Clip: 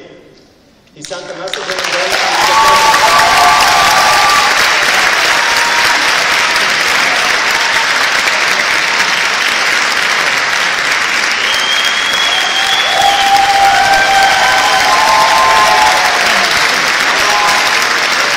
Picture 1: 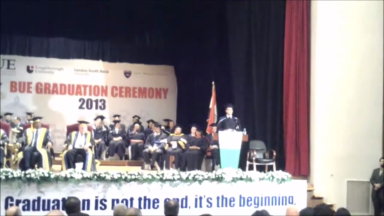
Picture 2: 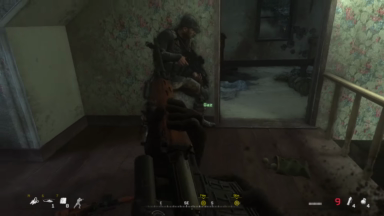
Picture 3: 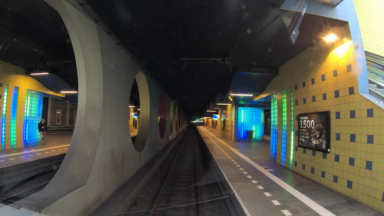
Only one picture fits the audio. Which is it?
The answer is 1